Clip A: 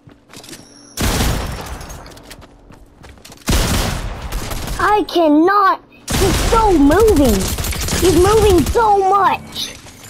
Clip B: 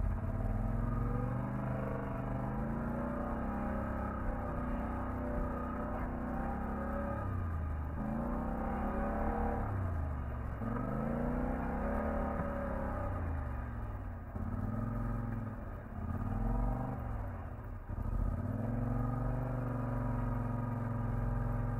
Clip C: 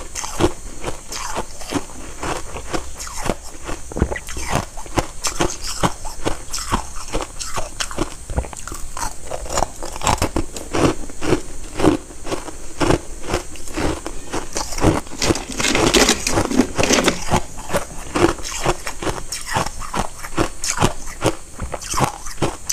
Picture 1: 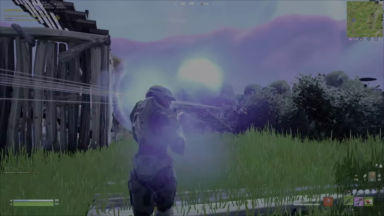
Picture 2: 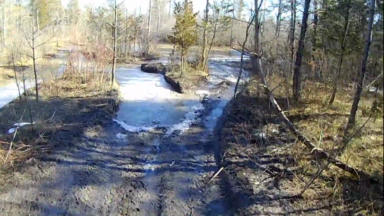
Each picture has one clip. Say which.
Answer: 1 A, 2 B